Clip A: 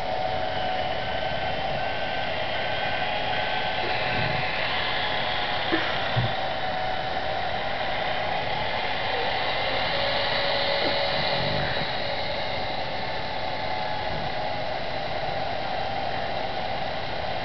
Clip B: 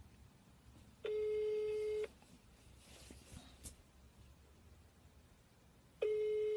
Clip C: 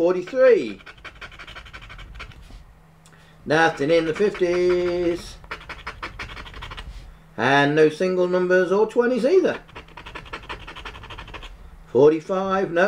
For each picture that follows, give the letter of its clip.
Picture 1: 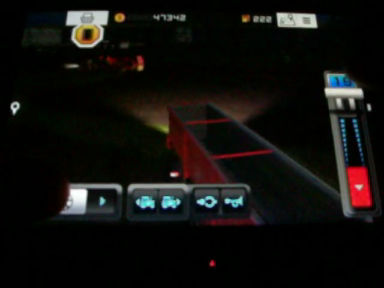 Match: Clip A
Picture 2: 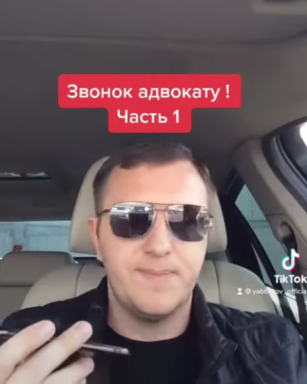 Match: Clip B